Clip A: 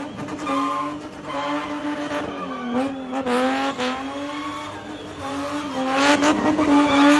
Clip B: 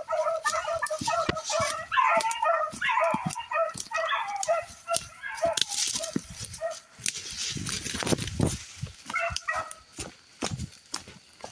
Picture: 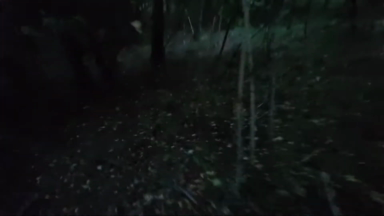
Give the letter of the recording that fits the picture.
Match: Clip B